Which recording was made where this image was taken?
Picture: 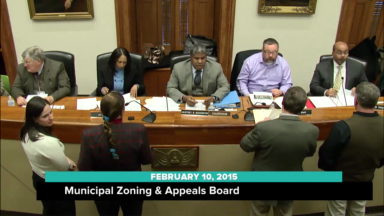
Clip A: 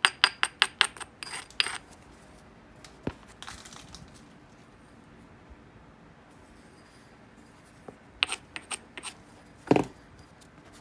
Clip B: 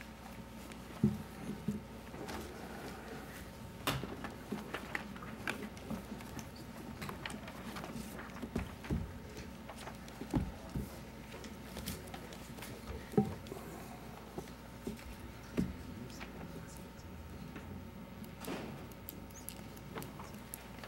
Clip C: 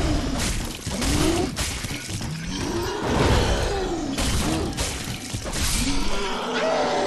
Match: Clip B